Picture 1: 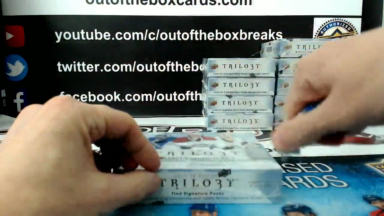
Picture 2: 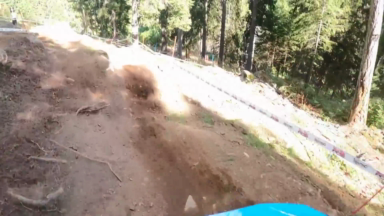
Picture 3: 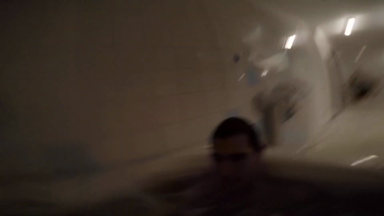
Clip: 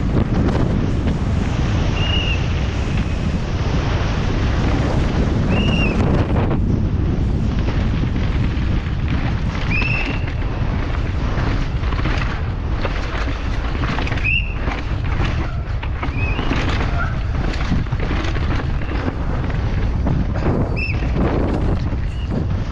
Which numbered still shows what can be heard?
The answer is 2